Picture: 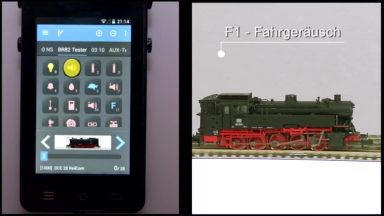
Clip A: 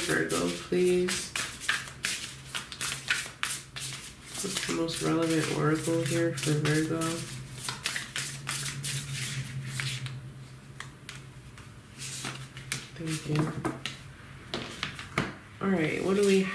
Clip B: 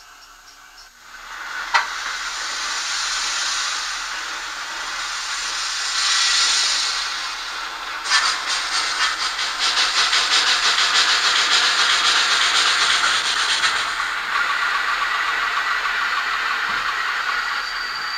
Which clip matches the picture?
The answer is B